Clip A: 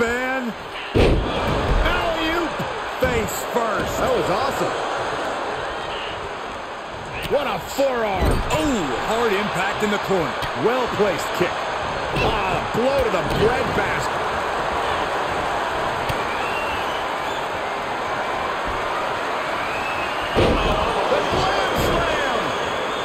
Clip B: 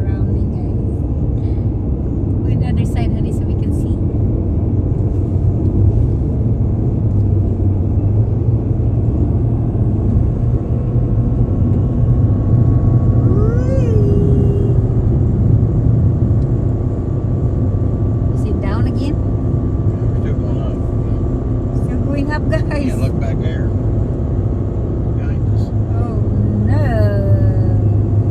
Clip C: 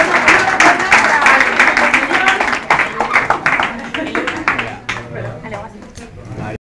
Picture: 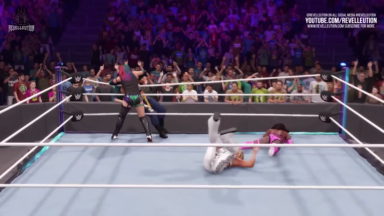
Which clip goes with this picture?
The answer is A